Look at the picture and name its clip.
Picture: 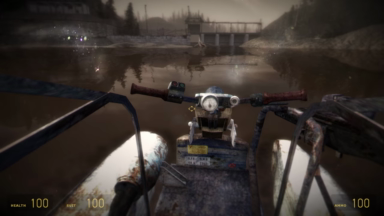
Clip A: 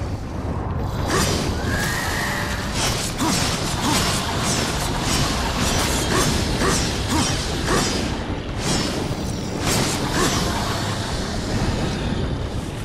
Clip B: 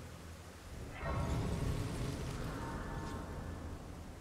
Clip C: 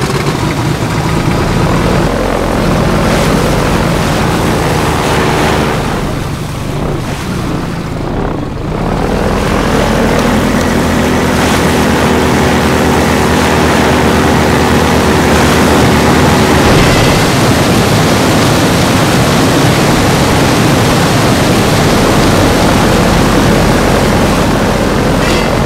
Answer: C